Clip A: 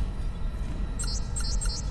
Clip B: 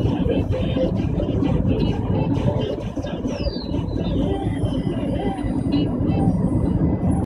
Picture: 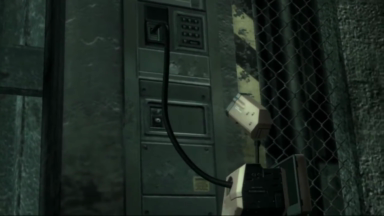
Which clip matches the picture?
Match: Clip A